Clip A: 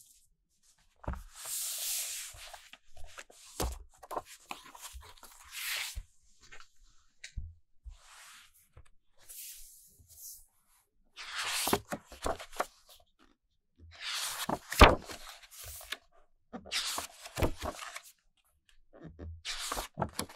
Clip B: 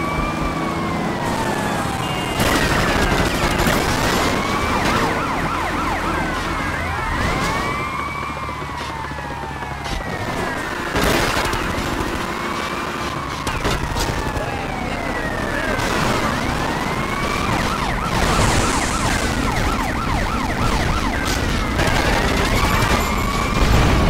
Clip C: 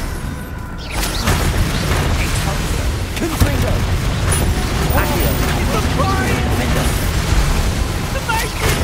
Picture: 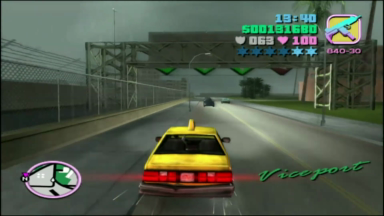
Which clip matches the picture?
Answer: B